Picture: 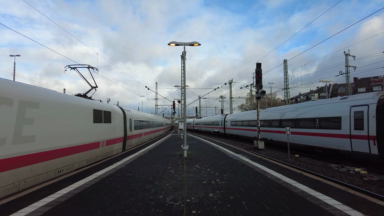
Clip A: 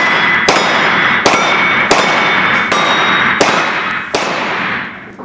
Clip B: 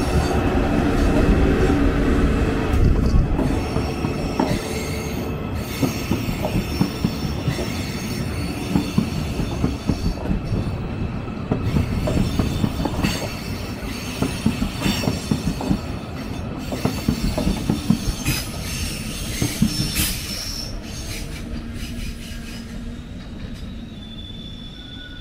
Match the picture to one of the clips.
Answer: B